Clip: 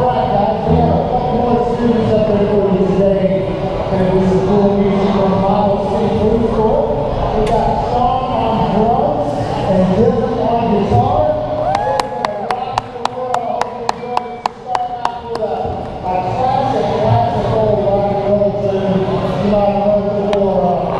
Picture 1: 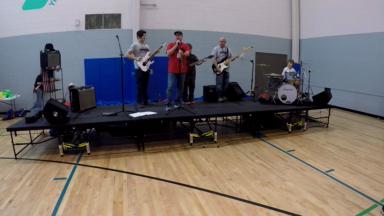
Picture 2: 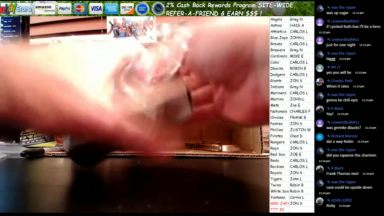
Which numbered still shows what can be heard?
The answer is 1